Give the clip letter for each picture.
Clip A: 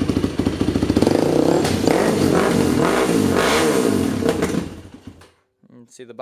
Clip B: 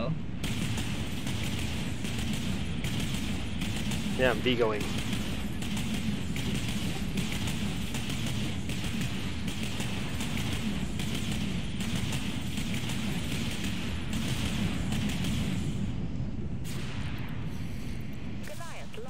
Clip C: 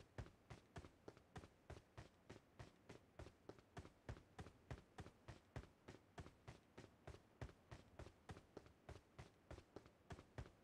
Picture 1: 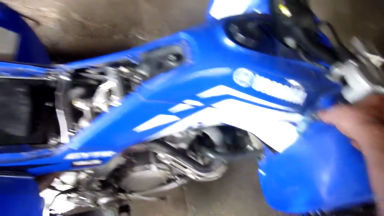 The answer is A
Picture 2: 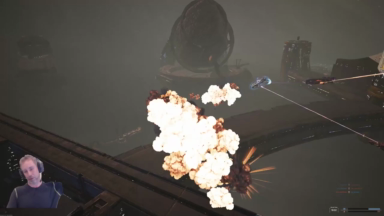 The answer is B